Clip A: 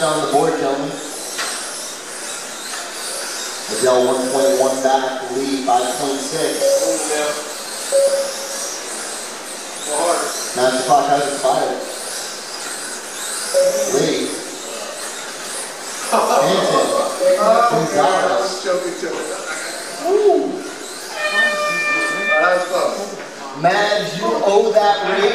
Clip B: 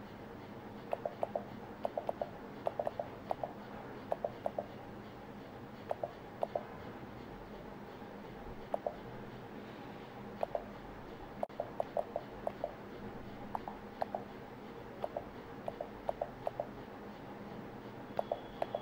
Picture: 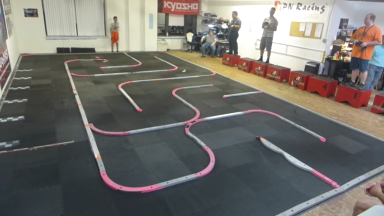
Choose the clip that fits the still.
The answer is A